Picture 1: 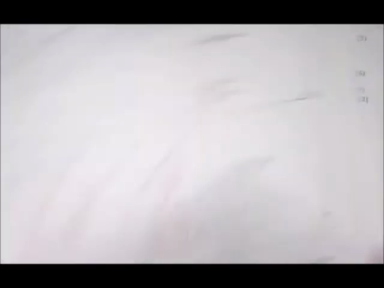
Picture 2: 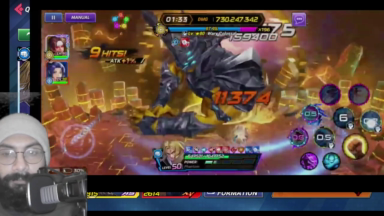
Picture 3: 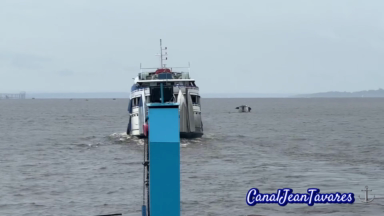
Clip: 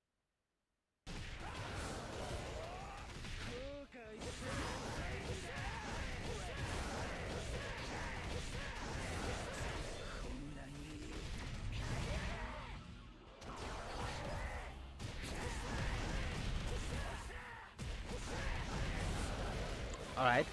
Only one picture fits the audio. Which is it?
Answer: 2